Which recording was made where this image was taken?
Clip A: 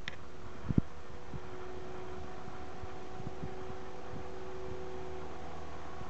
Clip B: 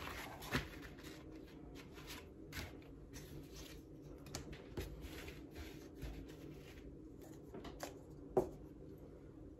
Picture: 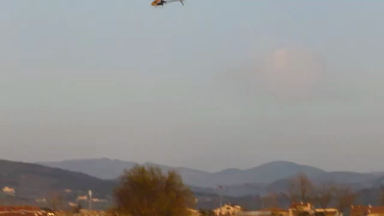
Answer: A